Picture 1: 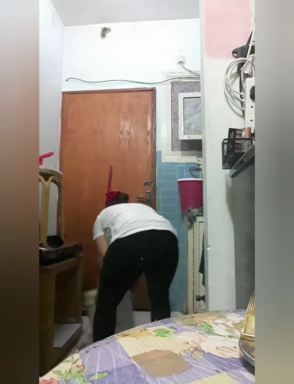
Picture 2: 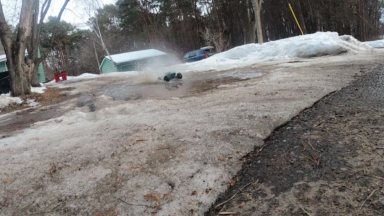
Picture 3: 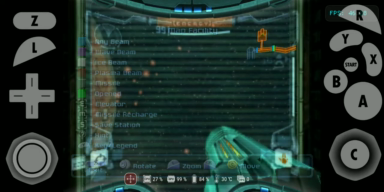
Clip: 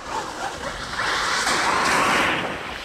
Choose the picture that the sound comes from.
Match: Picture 2